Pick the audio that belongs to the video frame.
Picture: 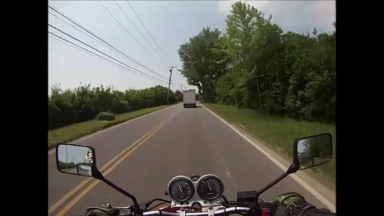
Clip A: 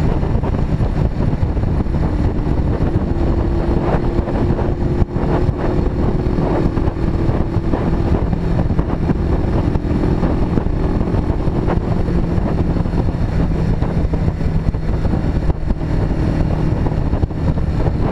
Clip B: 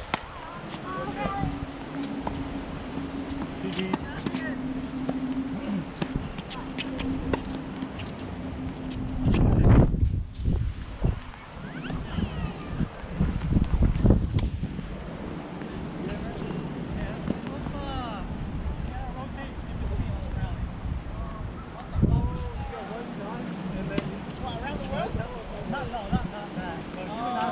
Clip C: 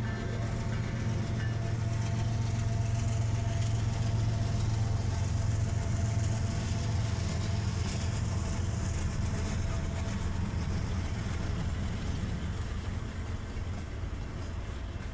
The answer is A